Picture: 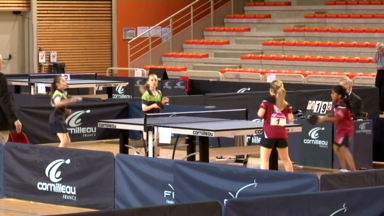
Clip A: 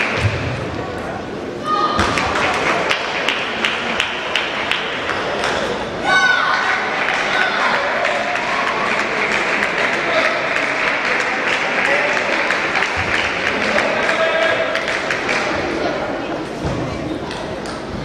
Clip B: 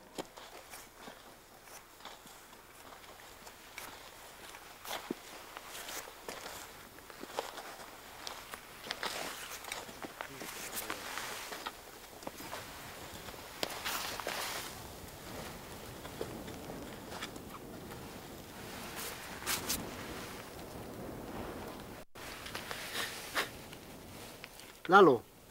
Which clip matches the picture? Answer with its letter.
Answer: A